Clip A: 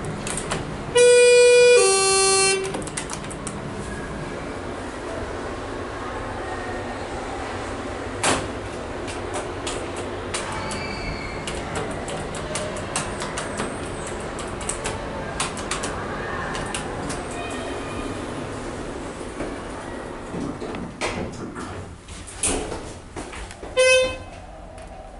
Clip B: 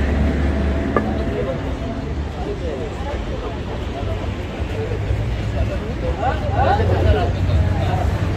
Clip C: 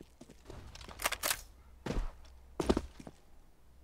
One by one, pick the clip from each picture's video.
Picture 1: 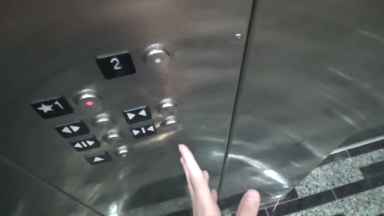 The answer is A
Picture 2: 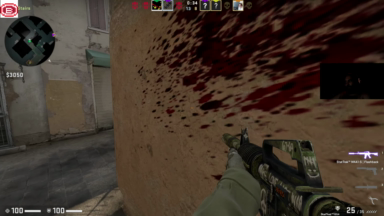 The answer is C